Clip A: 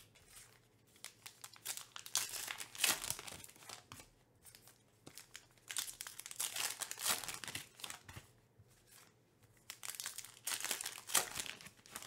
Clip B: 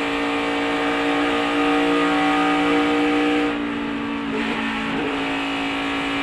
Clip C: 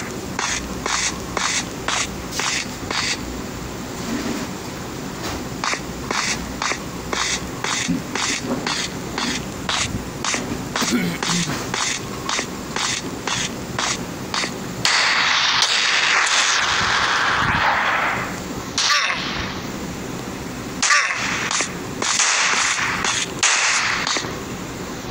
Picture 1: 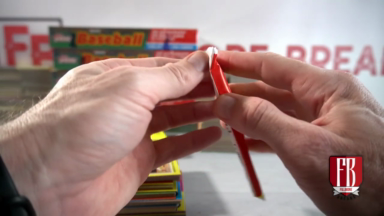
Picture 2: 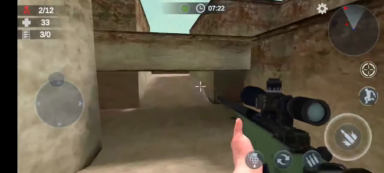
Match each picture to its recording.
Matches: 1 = A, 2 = C